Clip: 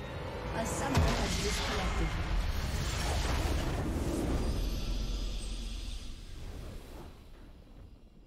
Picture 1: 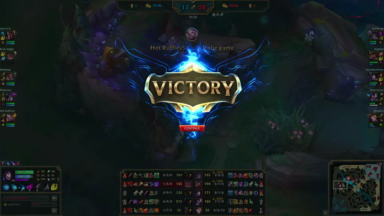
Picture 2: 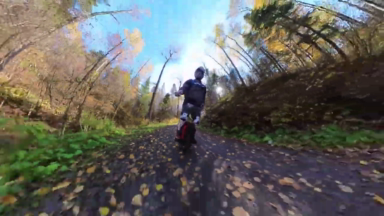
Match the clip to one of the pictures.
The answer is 1